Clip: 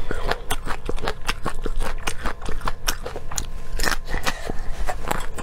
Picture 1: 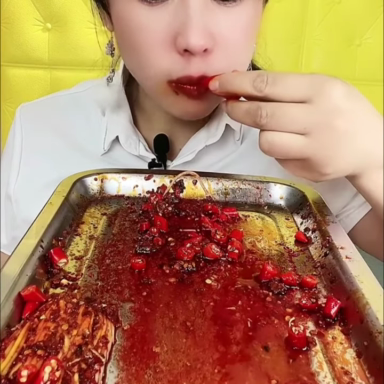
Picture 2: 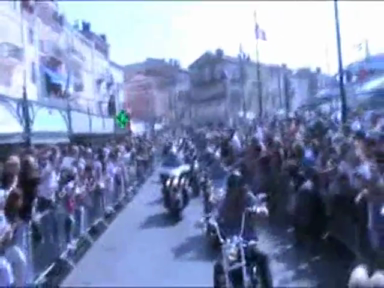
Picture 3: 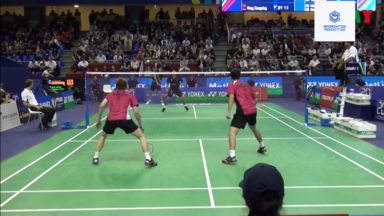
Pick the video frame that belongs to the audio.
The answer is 1